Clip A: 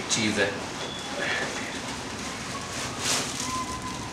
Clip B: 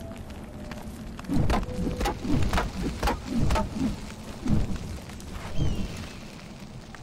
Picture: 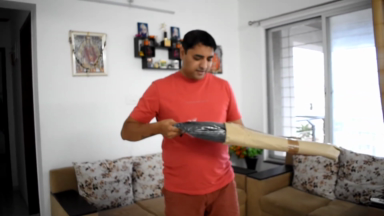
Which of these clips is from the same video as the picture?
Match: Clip A